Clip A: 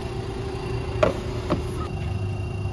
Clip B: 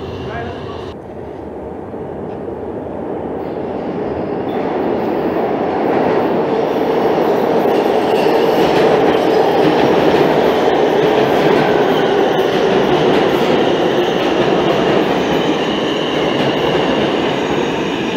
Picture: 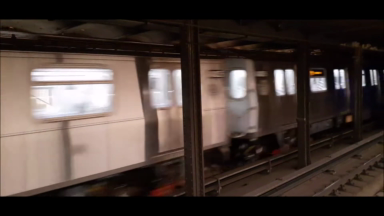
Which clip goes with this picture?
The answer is B